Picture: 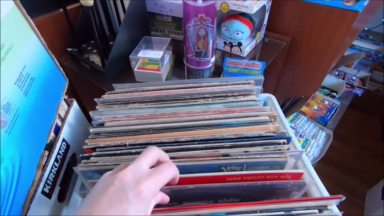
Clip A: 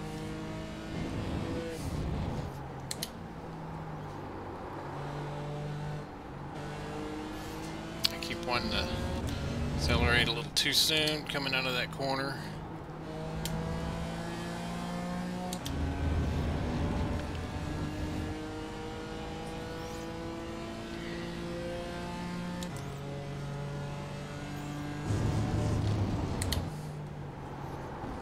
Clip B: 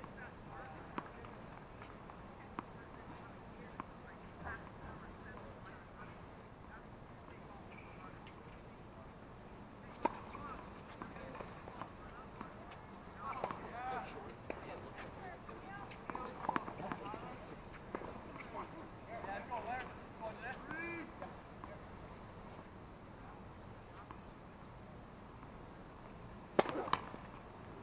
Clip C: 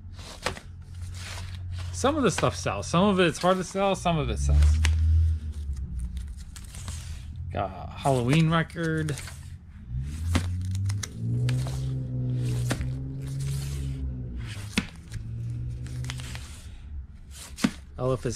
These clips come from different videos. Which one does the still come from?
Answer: C